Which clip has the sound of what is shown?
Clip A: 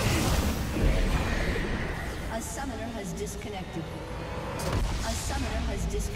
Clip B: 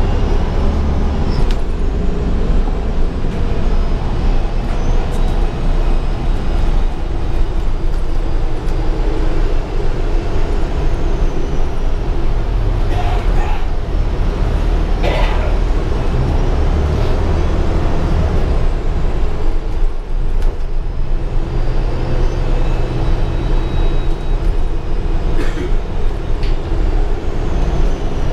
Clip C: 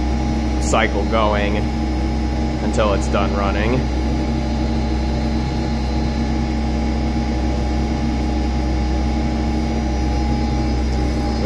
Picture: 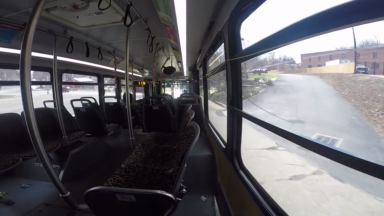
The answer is B